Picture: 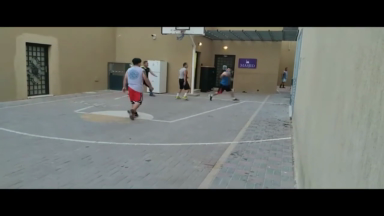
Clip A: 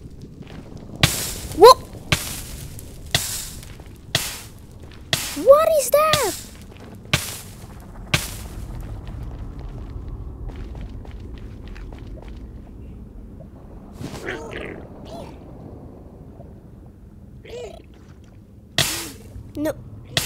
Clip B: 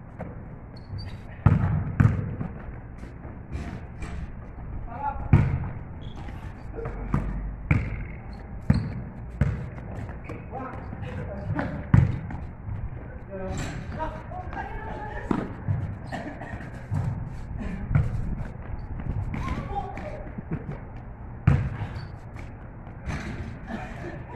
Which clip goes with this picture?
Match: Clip B